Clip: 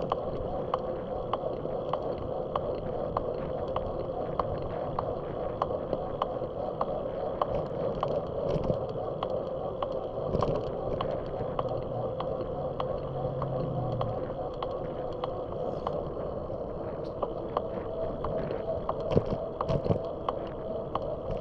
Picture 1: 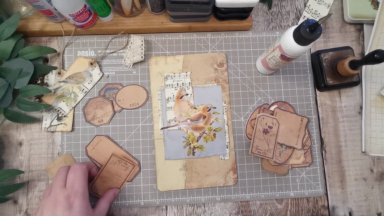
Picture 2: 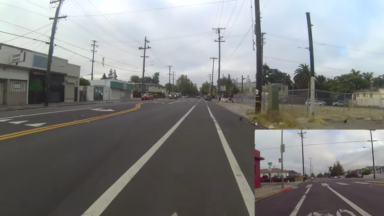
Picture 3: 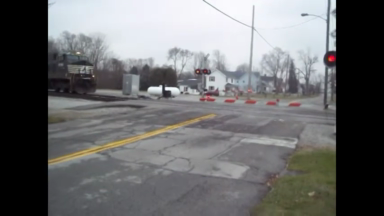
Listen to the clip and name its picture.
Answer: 2